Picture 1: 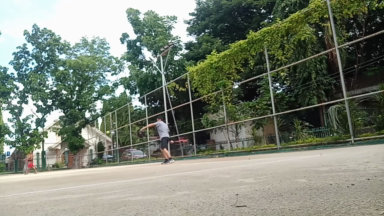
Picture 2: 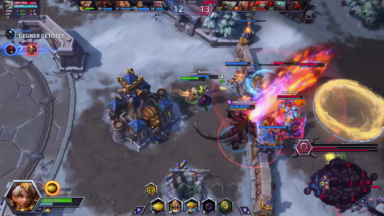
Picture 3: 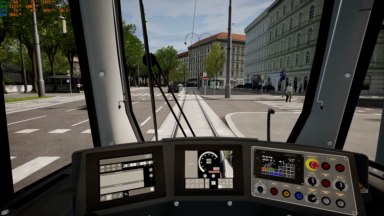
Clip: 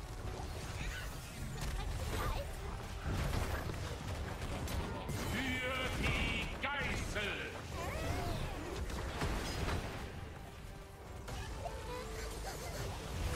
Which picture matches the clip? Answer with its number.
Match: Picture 2